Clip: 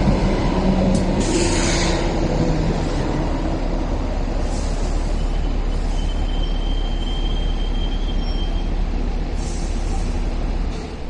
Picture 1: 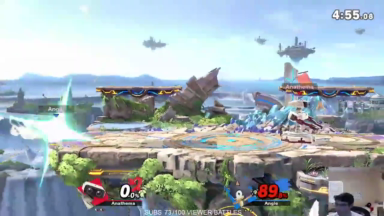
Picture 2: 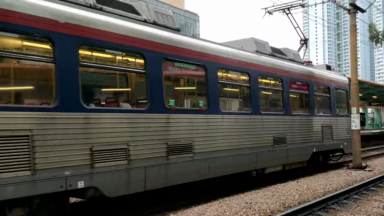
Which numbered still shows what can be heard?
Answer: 2